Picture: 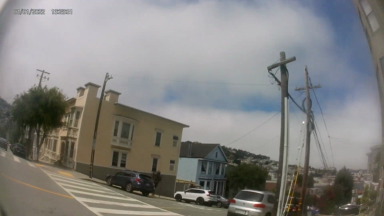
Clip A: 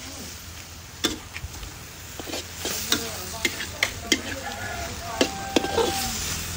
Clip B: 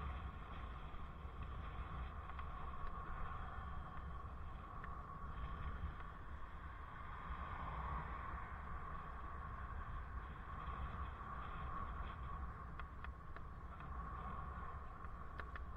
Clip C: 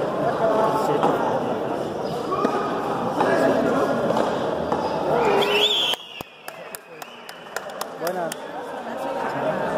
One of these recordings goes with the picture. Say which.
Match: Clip B